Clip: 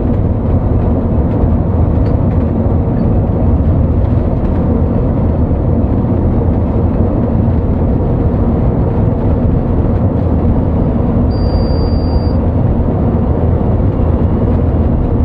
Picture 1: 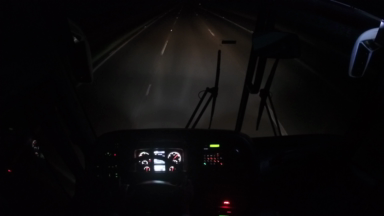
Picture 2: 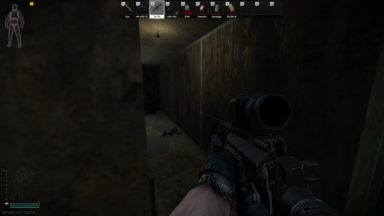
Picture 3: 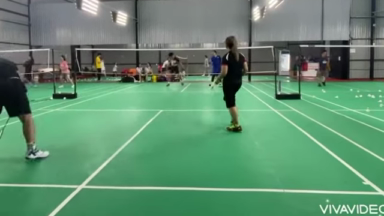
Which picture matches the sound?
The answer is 1